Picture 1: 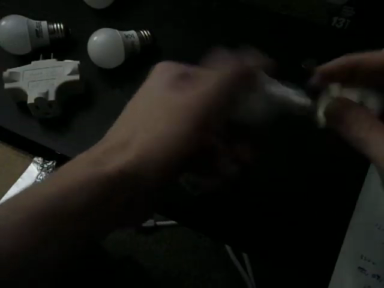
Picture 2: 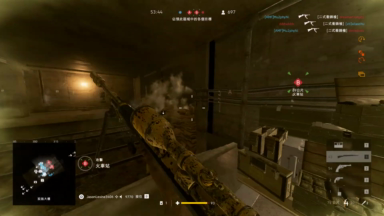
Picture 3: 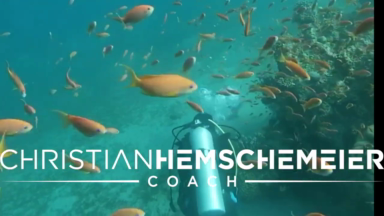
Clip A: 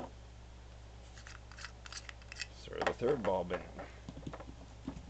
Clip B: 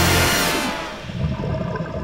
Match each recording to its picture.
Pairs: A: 1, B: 3